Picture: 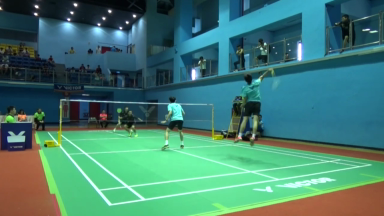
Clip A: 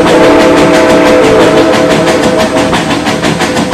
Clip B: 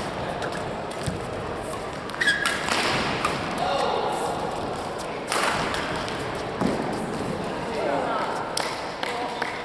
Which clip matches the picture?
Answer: B